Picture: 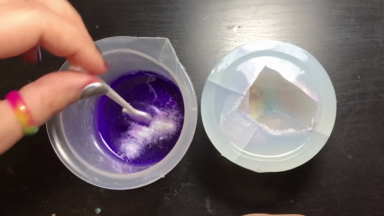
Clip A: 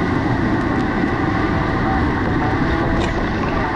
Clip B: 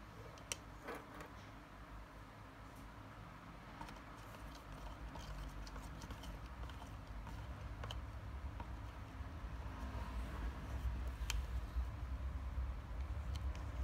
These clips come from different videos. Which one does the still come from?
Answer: B